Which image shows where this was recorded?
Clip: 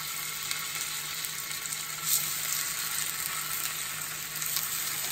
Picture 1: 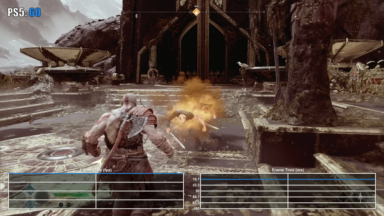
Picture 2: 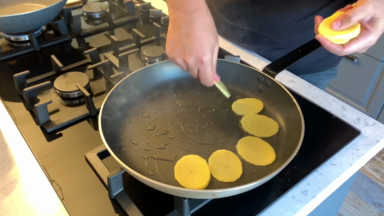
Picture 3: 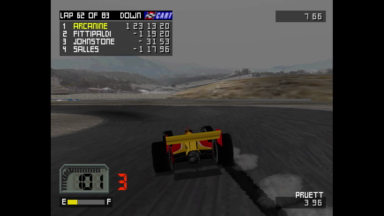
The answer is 2